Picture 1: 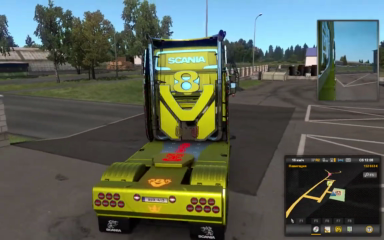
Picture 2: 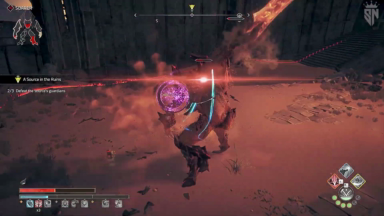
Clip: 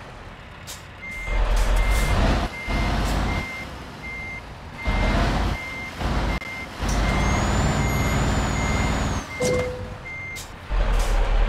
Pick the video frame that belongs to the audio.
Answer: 1